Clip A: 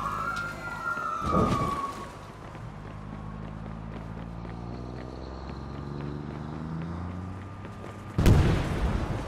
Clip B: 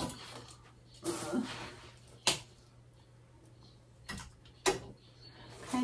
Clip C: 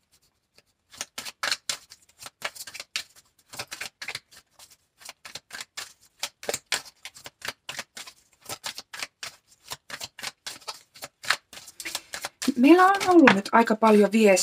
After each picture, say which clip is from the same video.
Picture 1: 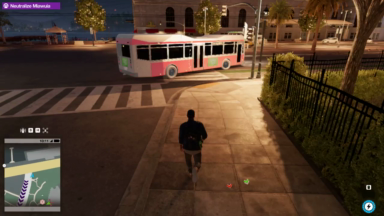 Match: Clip A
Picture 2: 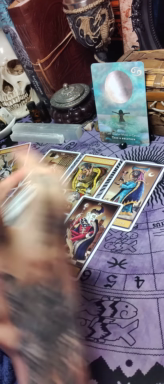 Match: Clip C